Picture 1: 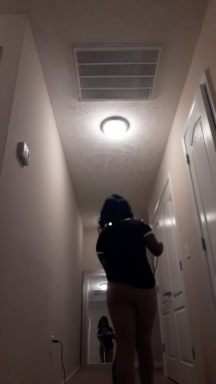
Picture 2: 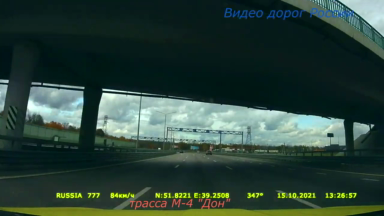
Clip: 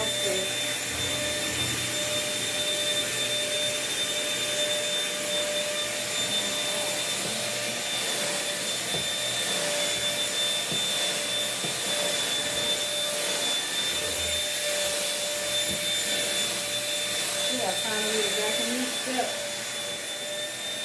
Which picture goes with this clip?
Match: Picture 1